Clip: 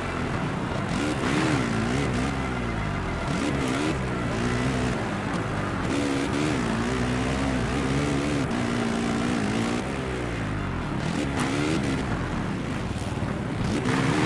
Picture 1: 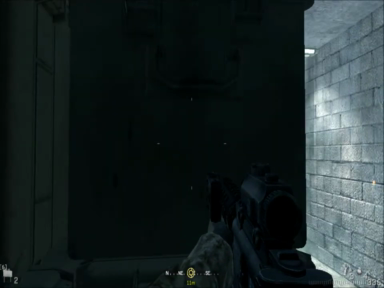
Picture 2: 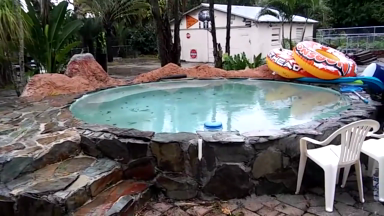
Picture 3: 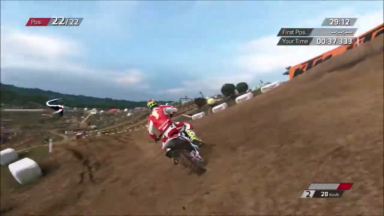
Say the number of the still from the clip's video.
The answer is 3